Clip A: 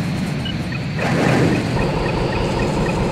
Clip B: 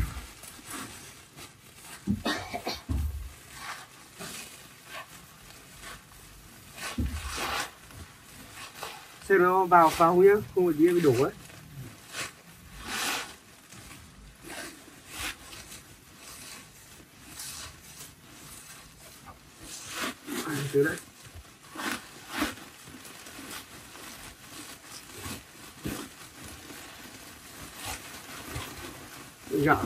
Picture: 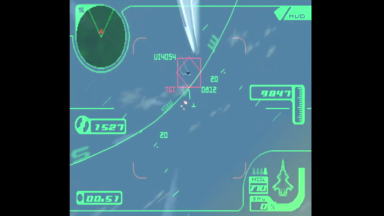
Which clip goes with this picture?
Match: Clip A